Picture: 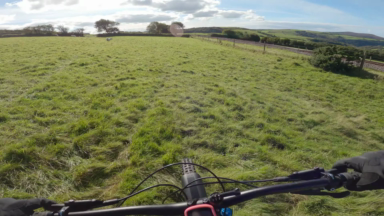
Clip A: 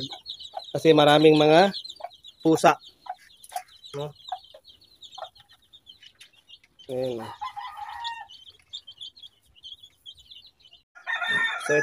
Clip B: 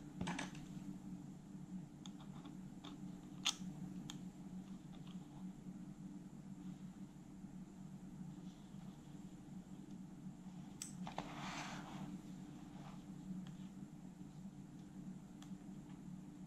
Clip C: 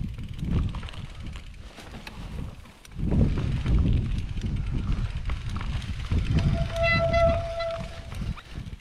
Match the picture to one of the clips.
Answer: C